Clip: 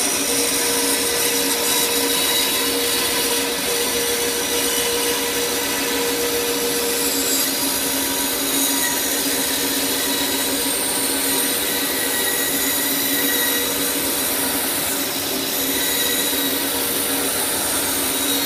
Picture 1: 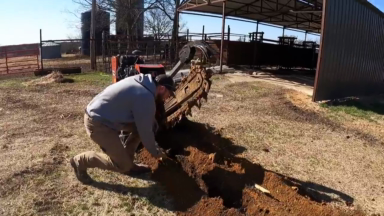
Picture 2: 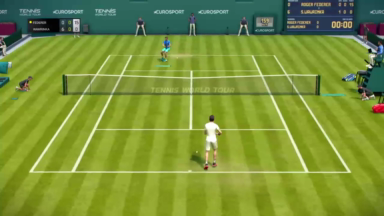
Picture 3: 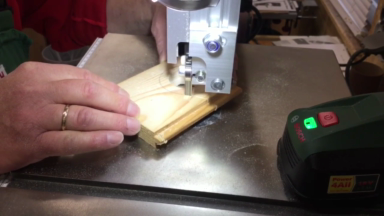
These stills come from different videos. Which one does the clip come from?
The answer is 3